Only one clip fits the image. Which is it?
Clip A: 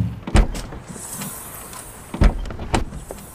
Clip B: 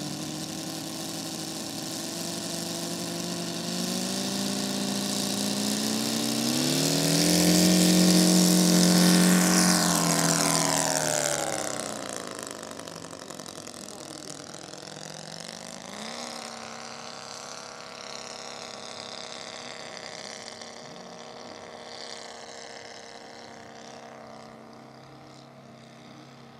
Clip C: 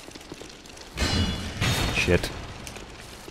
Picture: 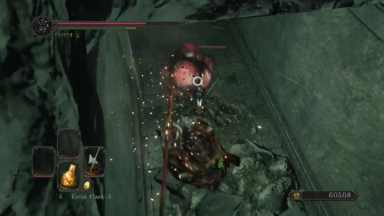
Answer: C